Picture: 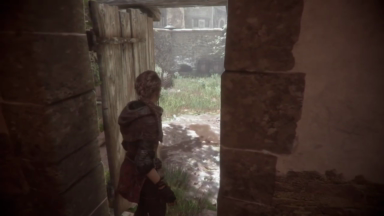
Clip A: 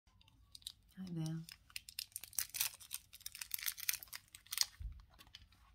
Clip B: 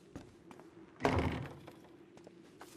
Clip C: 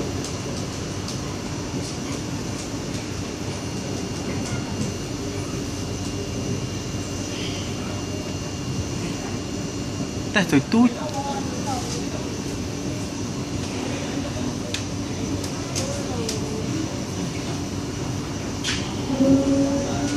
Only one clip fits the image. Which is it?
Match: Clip B